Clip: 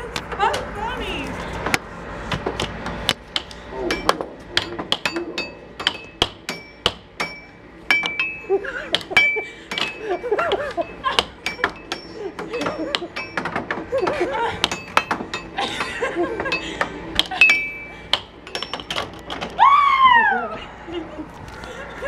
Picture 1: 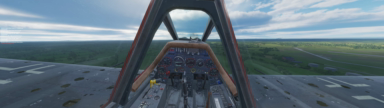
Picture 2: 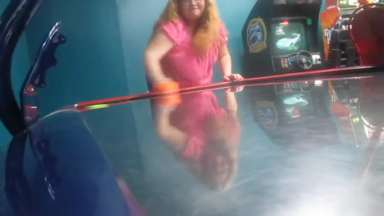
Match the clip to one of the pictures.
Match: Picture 2